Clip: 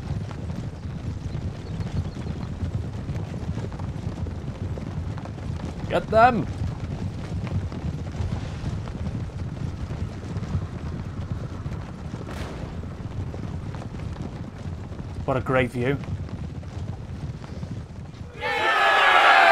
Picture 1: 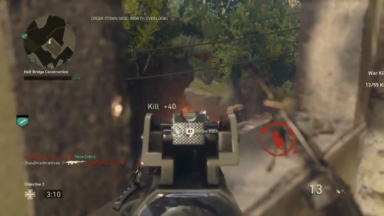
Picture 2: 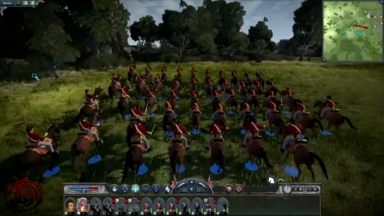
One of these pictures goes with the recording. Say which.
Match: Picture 2